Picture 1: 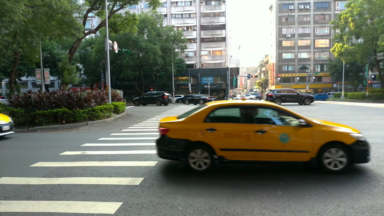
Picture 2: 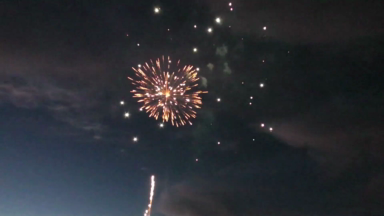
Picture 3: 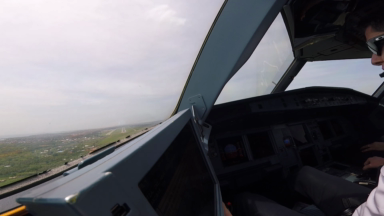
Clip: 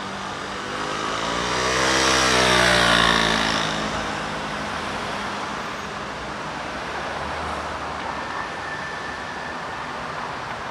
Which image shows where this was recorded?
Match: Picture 1